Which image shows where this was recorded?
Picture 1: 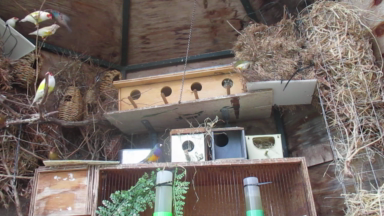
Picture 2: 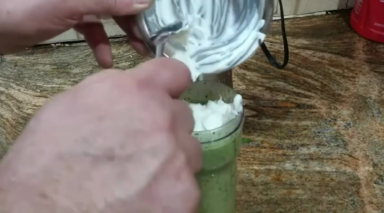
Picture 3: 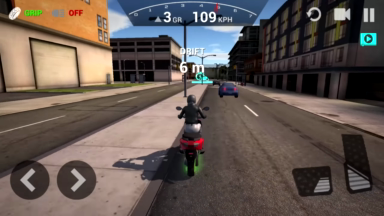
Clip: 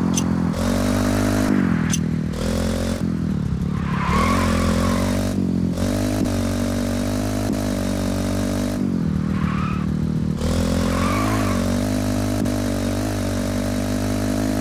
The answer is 3